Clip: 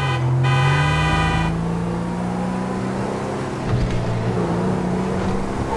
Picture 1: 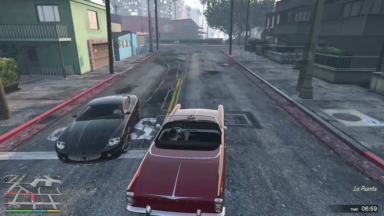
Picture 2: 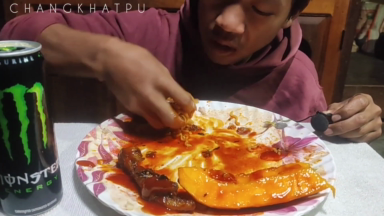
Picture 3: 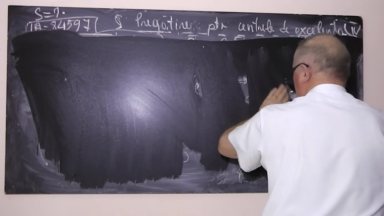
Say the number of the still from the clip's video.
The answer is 1